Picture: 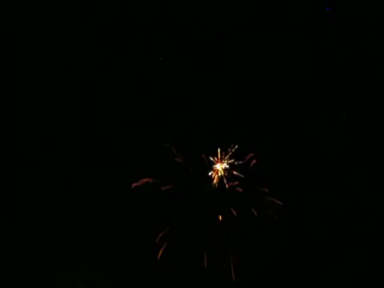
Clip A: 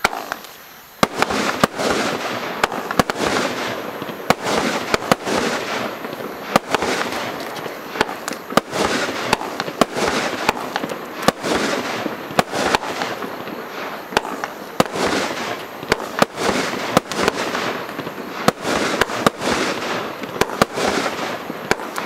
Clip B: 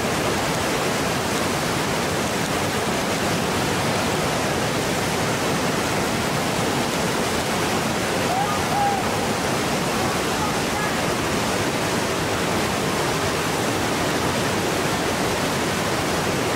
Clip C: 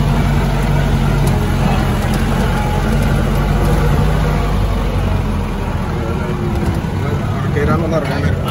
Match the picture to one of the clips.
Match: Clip A